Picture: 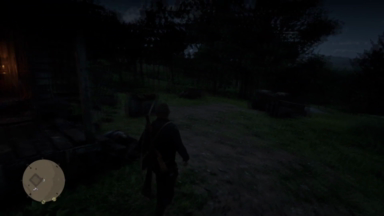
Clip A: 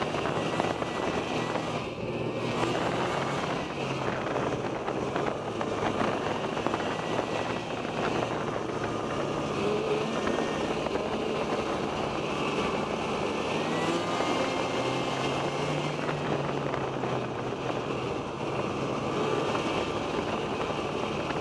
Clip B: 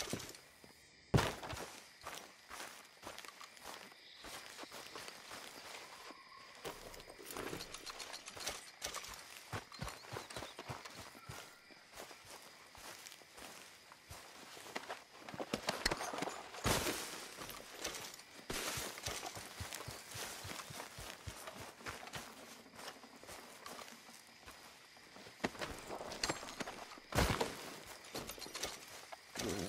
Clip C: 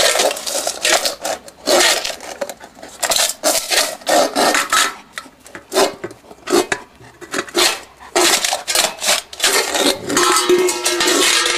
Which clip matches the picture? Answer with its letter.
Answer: B